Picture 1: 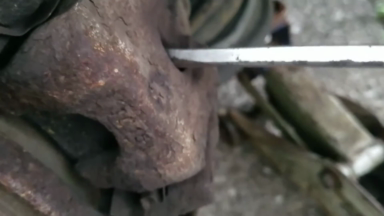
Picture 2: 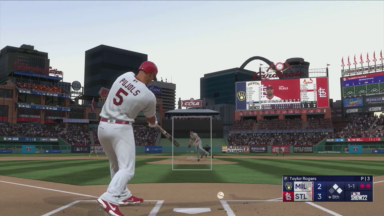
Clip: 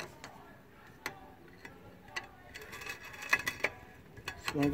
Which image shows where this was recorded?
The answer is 1